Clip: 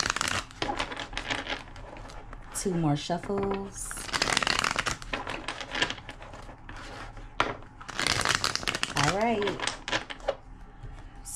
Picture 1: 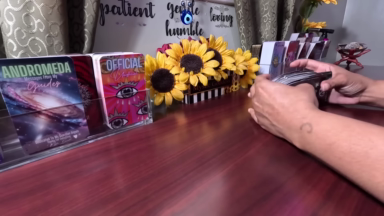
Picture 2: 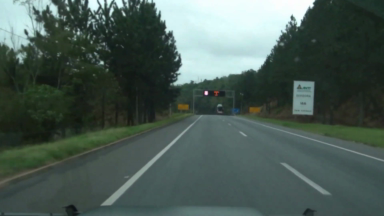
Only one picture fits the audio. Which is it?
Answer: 1